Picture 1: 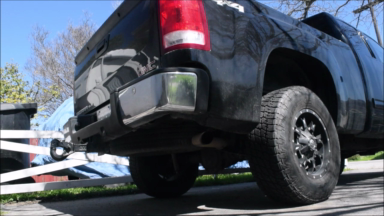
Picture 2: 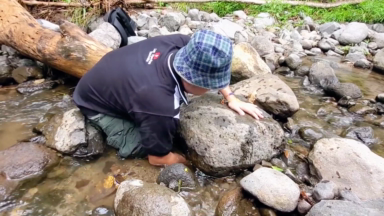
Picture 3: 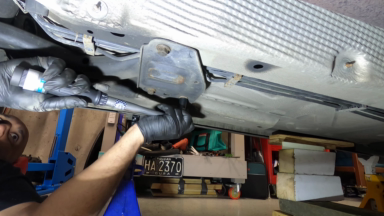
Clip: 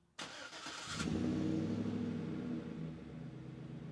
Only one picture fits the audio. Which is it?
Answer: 1